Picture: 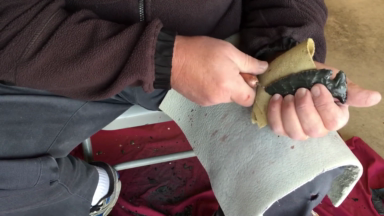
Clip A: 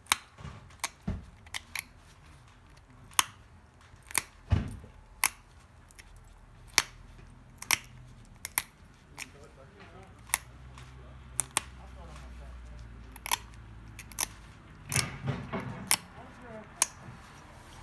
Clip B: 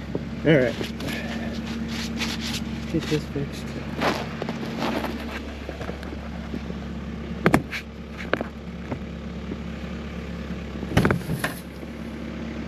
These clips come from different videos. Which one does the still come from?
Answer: A